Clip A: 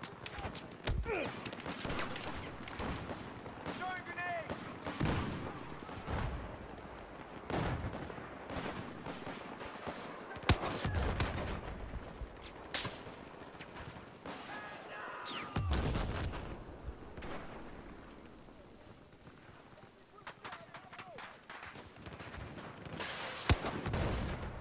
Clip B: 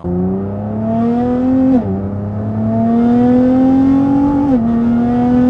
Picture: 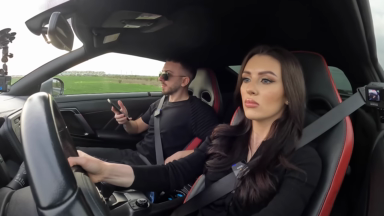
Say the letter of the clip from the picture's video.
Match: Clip B